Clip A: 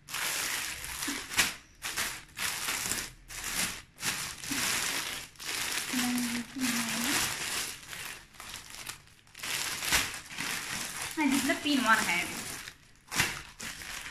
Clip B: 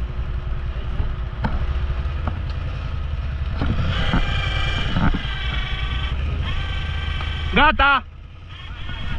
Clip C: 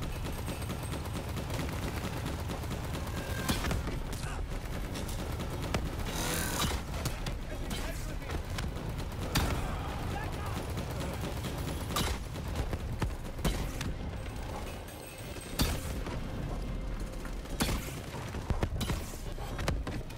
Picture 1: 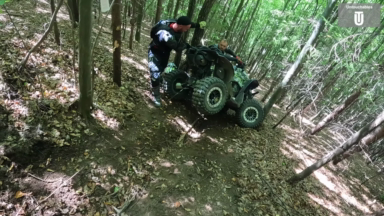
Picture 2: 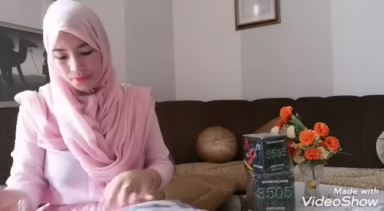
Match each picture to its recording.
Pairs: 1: B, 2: A